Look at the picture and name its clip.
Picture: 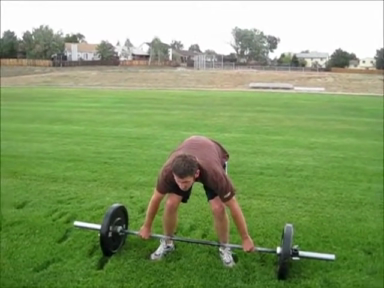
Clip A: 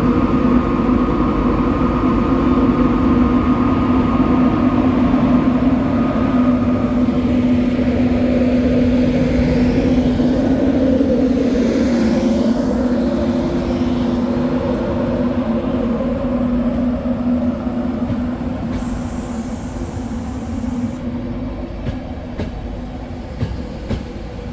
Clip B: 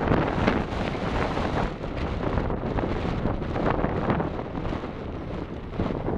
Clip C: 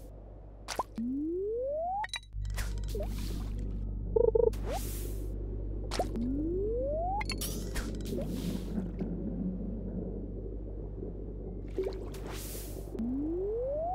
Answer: B